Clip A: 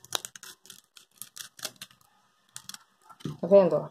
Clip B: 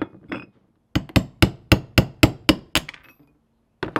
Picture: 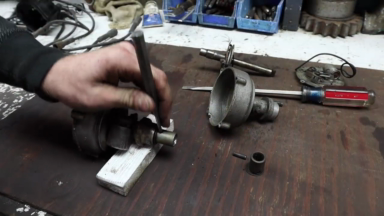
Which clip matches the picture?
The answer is B